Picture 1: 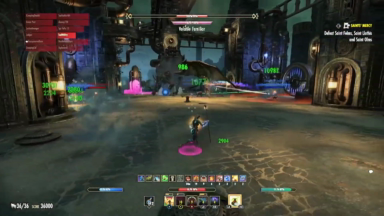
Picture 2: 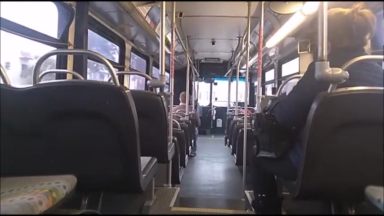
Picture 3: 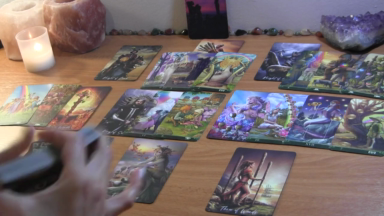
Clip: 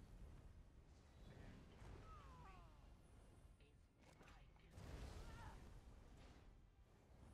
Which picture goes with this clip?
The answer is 1